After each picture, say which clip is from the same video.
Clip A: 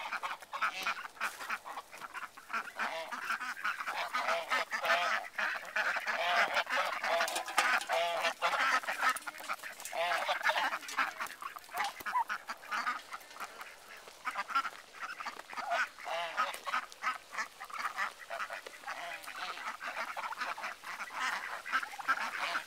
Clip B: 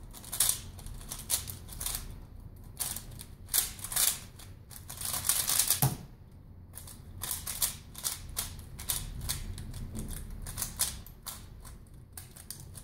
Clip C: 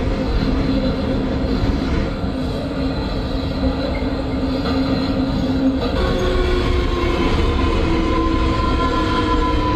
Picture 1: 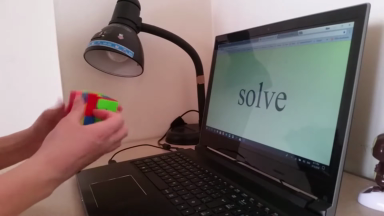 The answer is B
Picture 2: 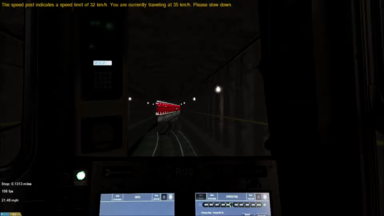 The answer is C